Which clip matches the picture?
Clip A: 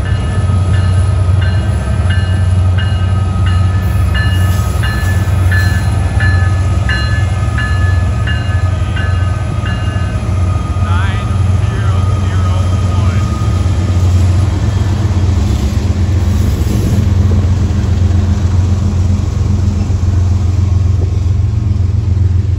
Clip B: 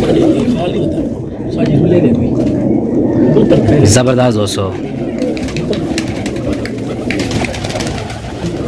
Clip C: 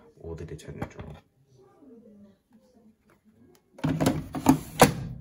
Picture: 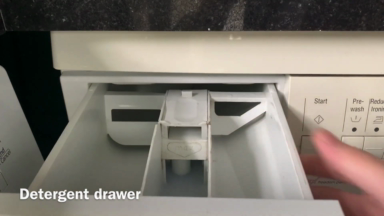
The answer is C